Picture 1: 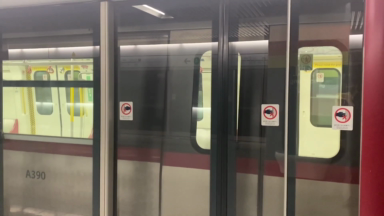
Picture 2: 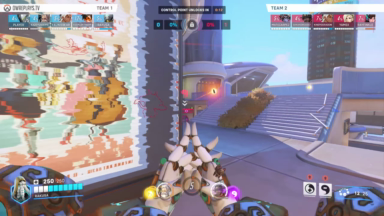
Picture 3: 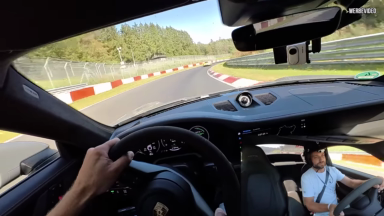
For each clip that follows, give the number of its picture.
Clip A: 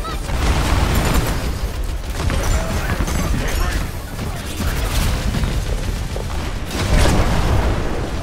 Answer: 2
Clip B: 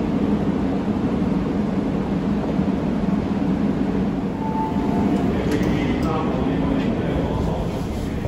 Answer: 1